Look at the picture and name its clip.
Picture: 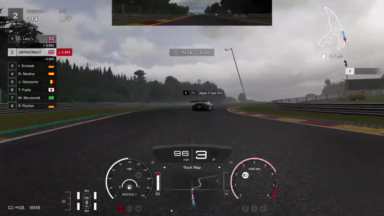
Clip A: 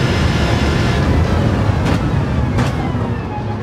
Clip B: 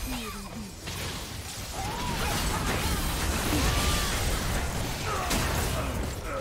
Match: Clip A